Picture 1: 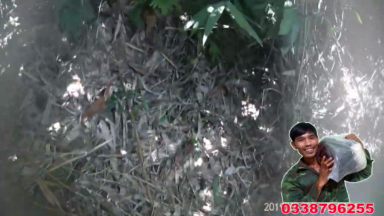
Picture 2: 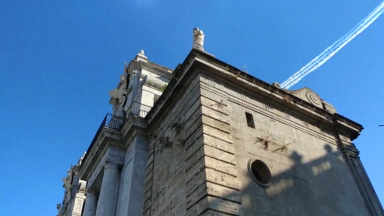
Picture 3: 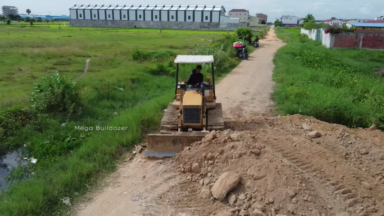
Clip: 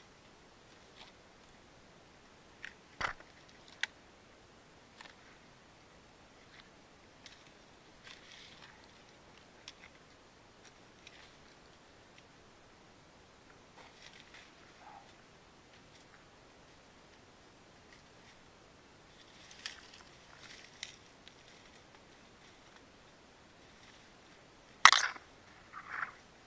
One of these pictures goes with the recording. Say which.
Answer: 1